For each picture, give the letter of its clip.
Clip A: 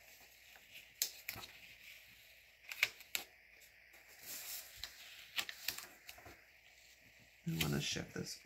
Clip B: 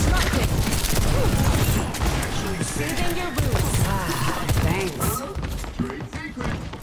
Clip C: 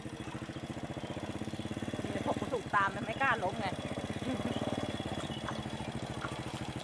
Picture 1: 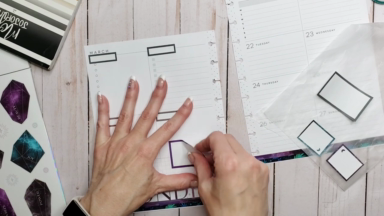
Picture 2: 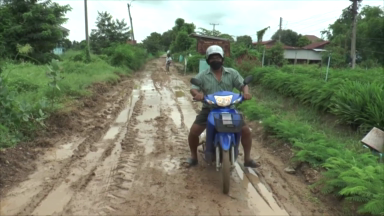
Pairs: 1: A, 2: C